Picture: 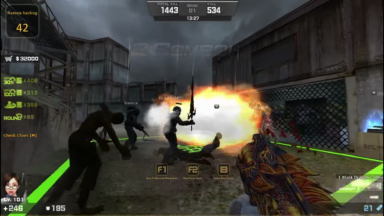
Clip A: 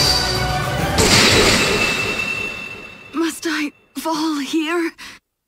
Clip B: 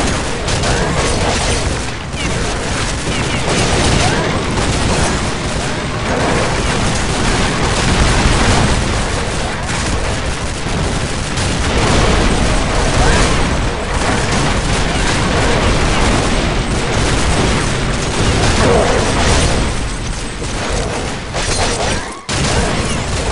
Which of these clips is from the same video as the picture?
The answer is B